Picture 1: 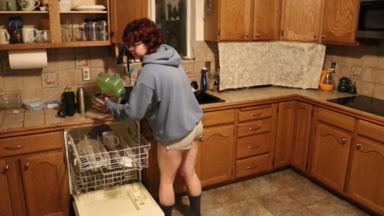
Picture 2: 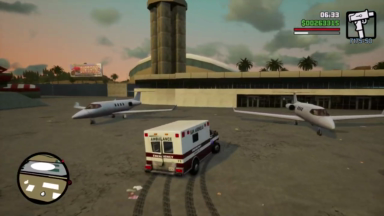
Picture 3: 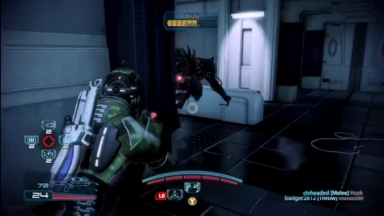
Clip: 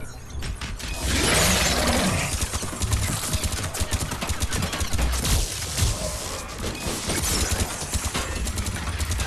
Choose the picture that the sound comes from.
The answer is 3